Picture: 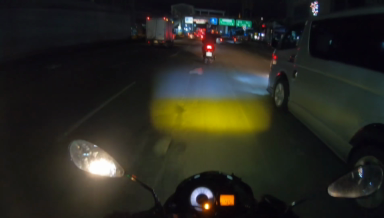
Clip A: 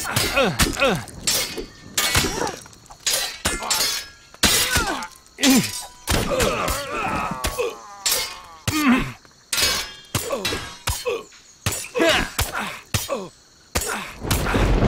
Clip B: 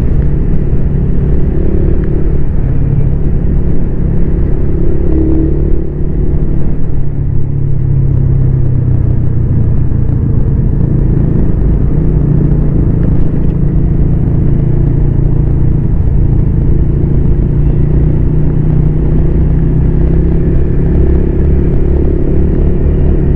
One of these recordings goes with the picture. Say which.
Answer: B